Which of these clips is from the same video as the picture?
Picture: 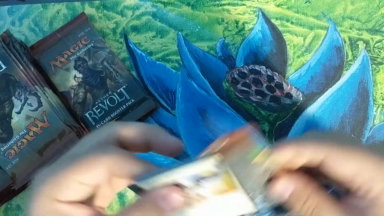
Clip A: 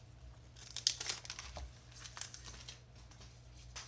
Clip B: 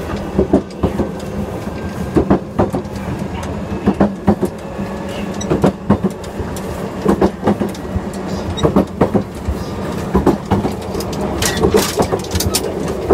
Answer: A